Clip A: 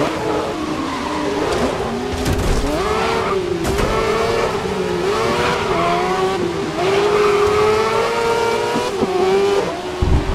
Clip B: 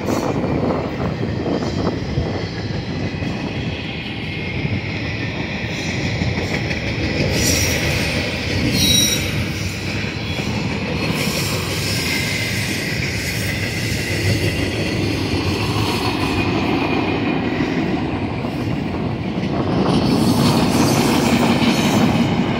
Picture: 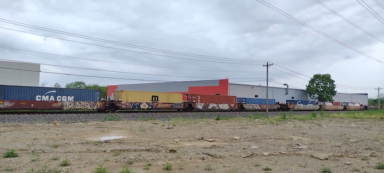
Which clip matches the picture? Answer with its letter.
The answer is B